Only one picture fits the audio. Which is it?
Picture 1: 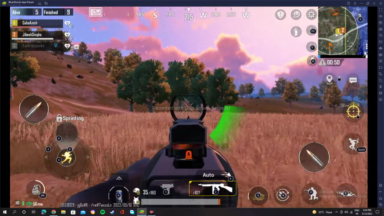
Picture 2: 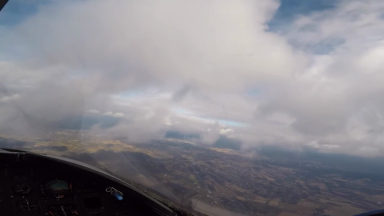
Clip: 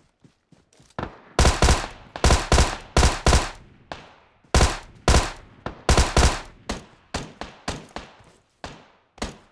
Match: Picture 1